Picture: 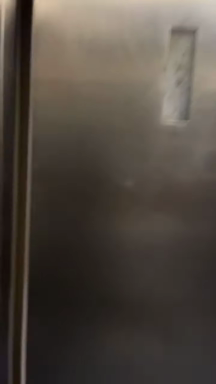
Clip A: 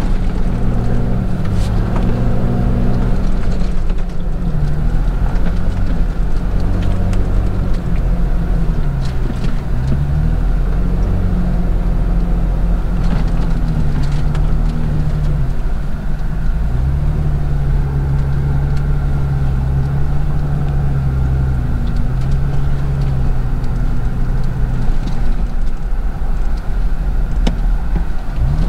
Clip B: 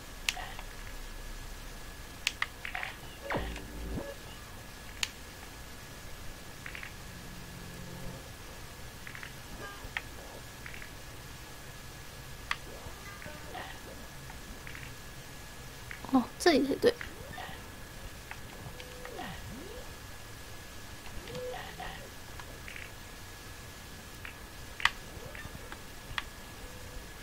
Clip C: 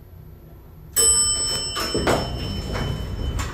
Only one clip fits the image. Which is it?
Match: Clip C